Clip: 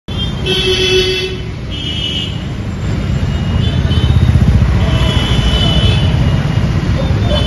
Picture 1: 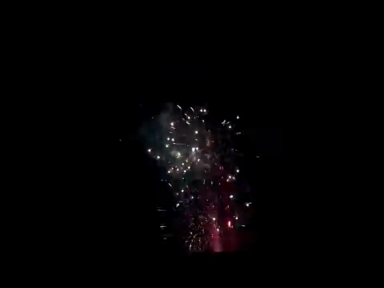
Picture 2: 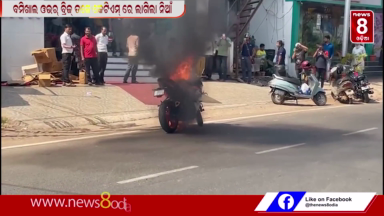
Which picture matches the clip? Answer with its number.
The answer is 2